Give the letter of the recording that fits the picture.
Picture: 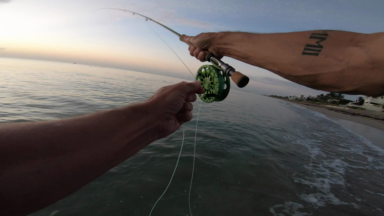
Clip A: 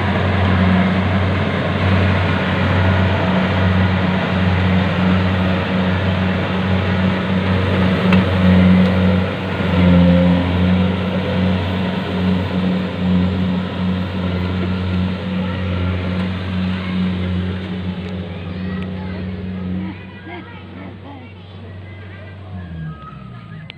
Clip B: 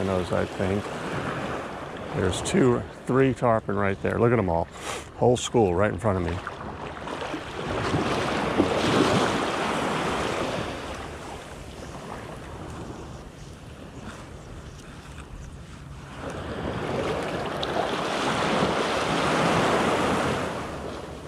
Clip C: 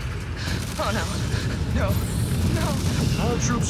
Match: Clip B